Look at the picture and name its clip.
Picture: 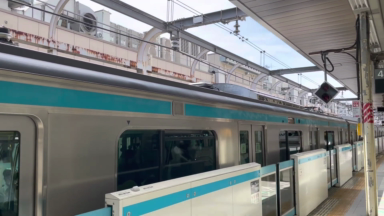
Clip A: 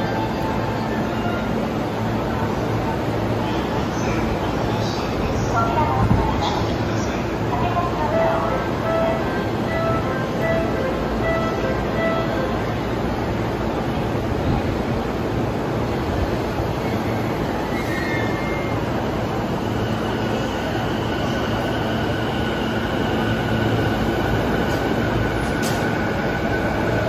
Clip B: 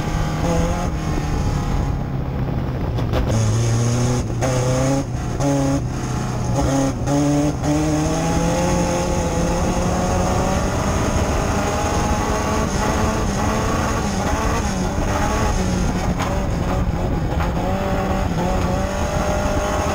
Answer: A